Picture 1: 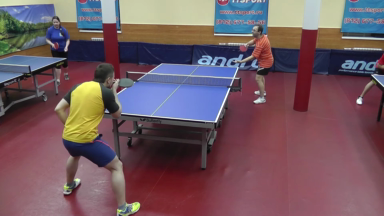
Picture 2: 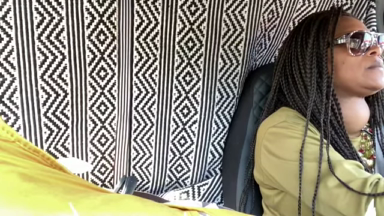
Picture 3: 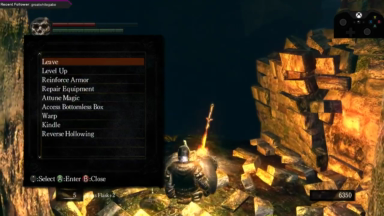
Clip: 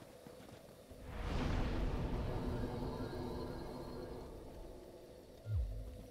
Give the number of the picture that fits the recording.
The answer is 3